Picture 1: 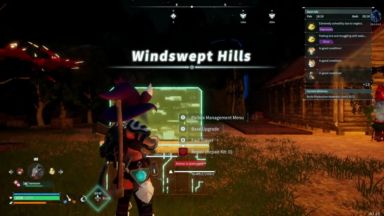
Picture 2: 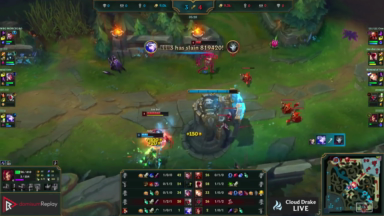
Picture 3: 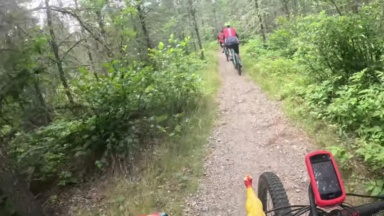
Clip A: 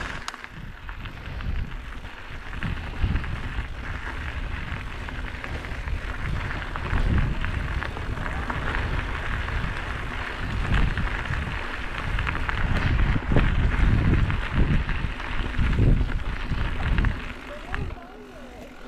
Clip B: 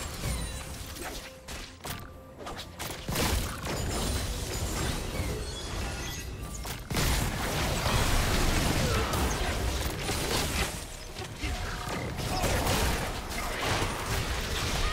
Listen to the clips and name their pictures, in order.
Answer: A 3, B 2